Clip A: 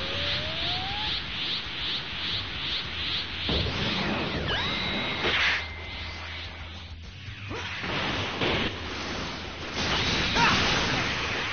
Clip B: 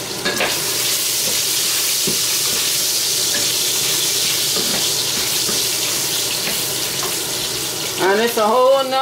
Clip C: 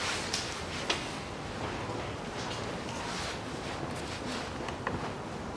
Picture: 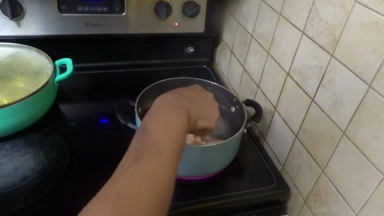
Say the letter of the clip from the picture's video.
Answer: B